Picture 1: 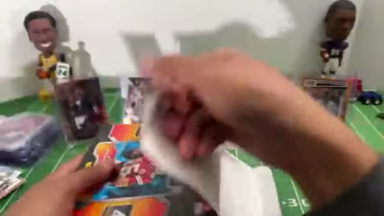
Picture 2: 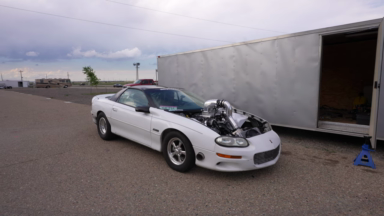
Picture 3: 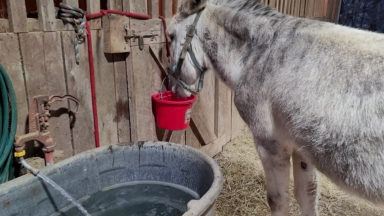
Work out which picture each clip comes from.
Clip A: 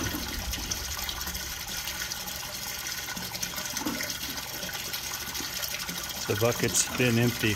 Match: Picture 3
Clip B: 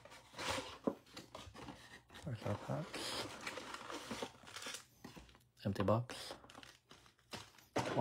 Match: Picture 1